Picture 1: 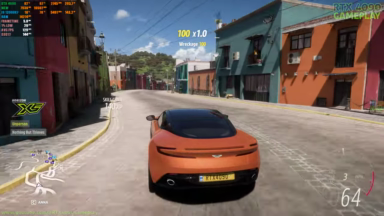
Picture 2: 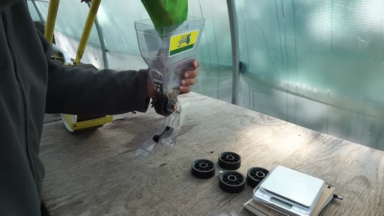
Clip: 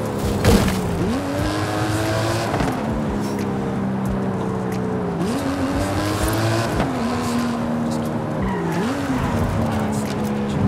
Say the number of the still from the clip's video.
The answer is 1